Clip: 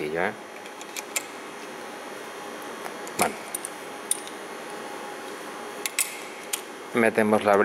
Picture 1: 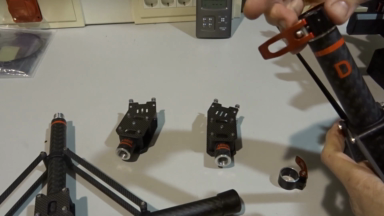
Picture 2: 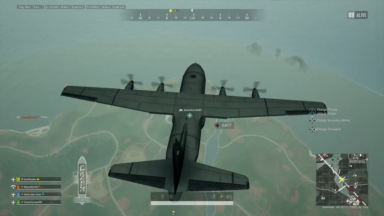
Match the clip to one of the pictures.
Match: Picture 1